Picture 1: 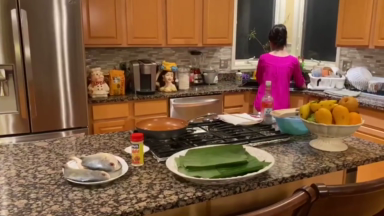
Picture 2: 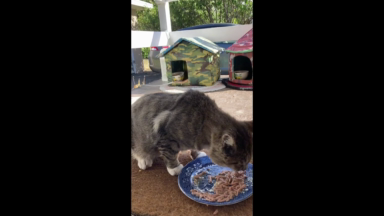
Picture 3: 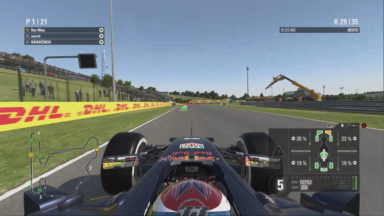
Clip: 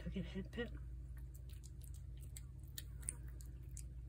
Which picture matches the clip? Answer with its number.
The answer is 2